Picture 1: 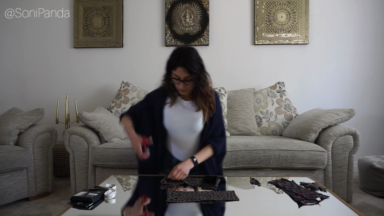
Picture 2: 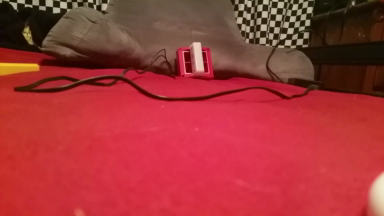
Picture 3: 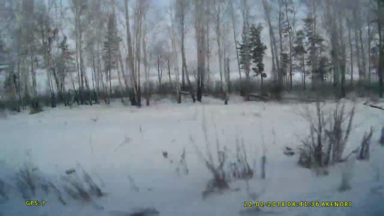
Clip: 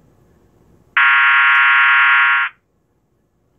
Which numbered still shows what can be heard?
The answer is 2